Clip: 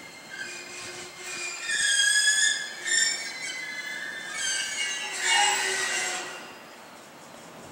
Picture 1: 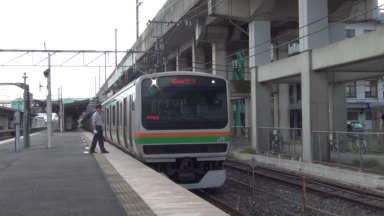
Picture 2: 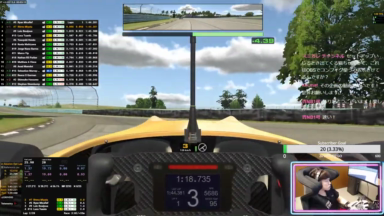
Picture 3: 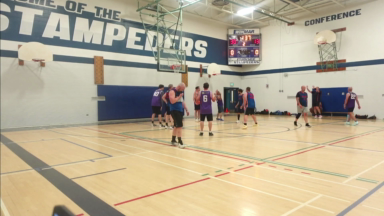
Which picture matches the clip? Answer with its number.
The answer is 1